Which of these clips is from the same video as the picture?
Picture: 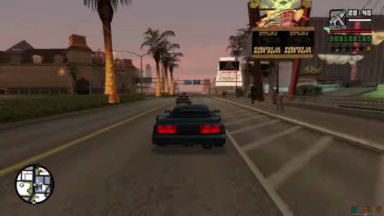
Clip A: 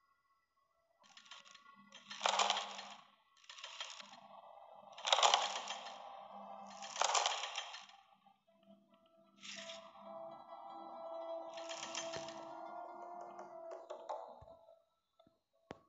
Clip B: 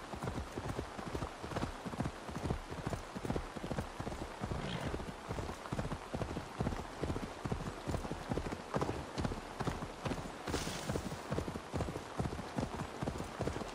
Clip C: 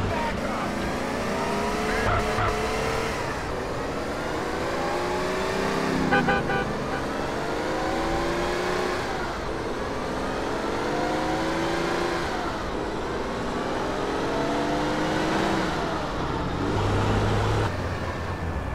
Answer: C